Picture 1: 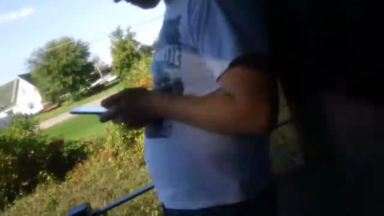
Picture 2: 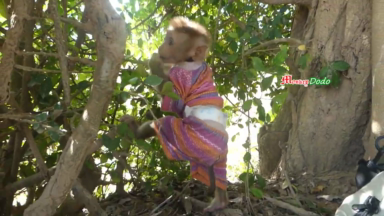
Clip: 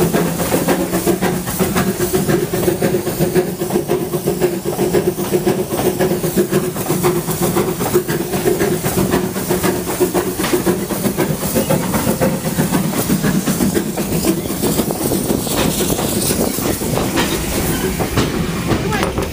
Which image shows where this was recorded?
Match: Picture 1